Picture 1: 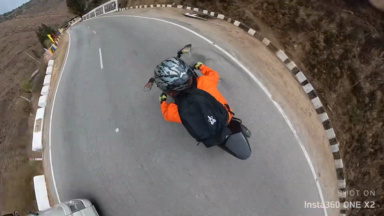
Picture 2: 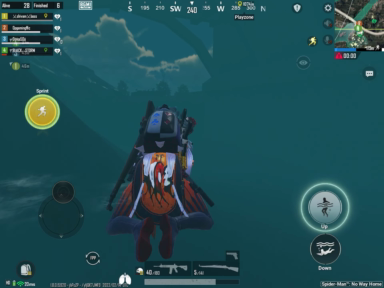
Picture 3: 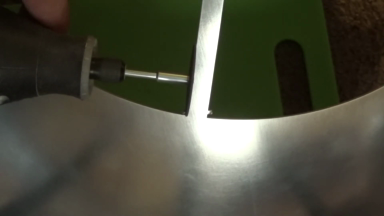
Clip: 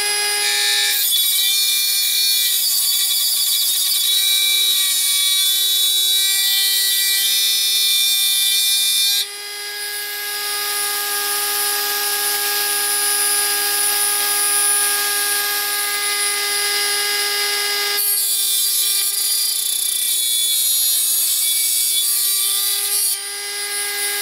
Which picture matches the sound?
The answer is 3